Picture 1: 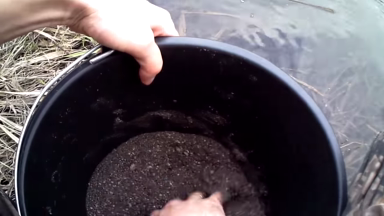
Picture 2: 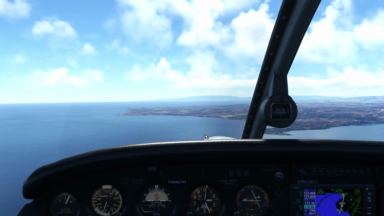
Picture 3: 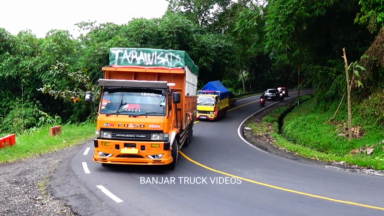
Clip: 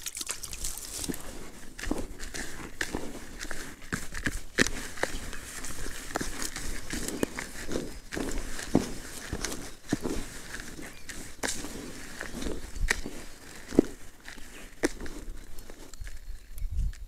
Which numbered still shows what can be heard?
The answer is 1